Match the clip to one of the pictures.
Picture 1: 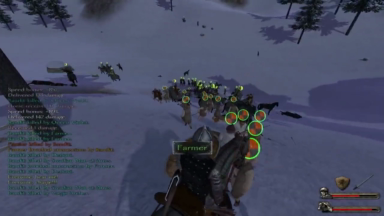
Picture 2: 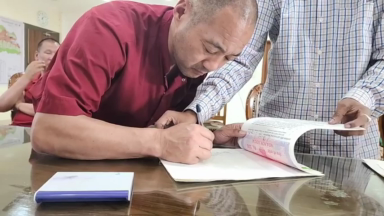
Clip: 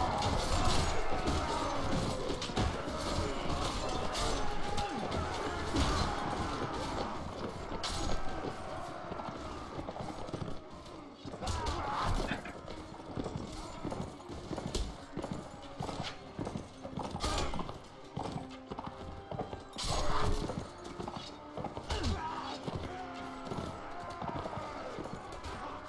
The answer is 1